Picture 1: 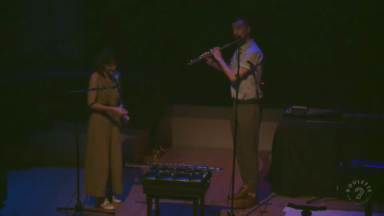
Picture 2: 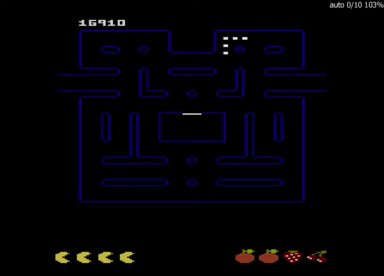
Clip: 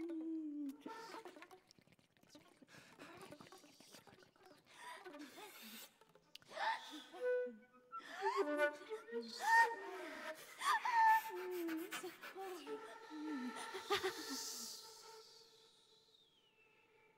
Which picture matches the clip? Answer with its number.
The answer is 1